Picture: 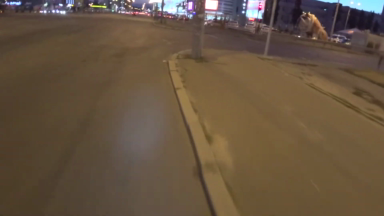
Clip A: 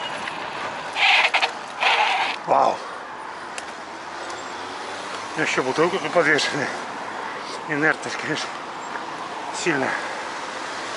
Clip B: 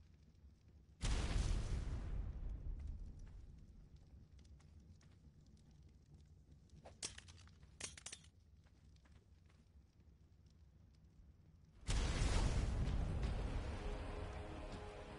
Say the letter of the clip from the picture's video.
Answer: A